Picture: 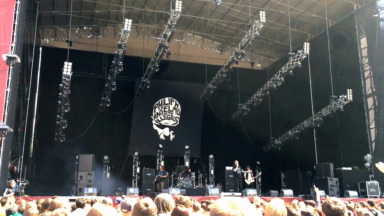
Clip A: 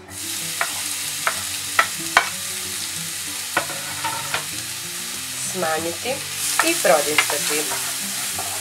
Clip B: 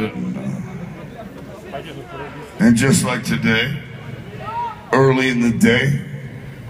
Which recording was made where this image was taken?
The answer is B